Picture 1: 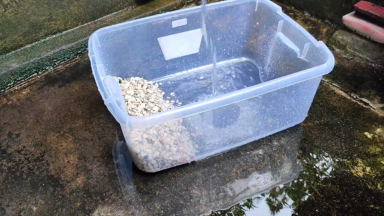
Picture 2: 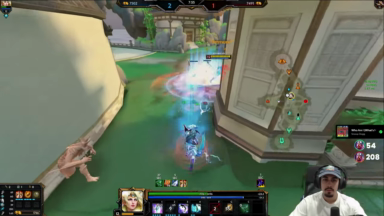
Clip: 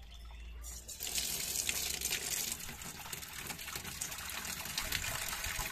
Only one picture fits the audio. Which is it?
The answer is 1